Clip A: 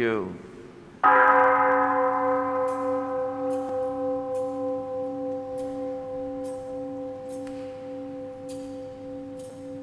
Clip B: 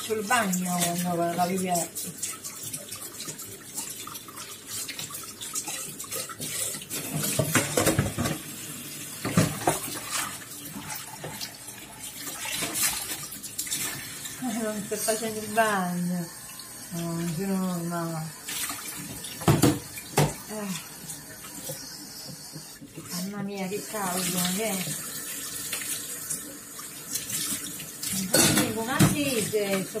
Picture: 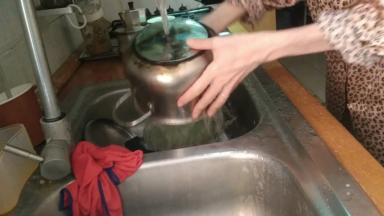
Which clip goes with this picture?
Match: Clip B